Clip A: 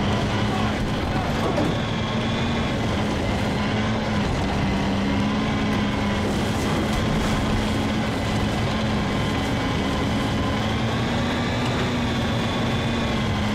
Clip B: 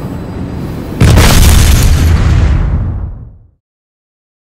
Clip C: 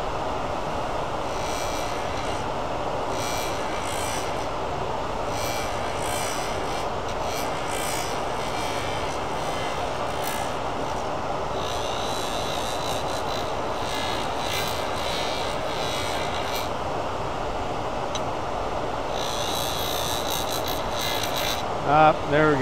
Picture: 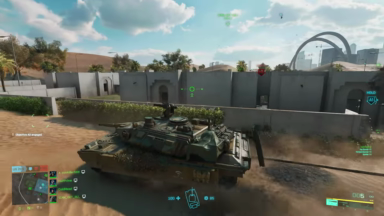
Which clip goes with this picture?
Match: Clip A